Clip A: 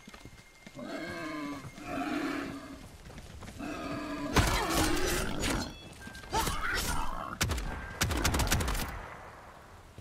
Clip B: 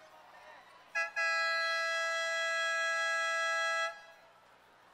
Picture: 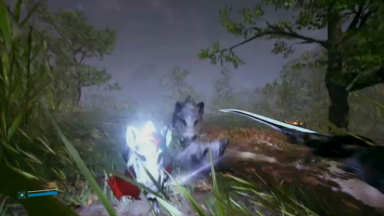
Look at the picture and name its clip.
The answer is A